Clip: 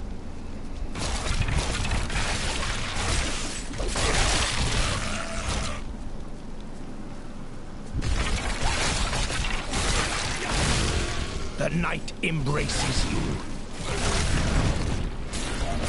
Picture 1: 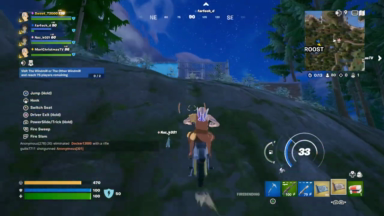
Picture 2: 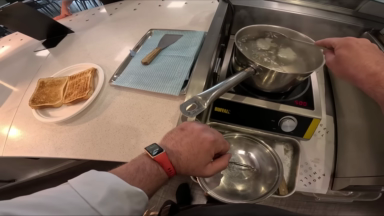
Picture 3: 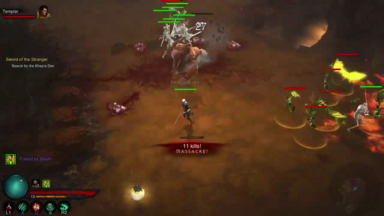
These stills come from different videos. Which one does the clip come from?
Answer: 3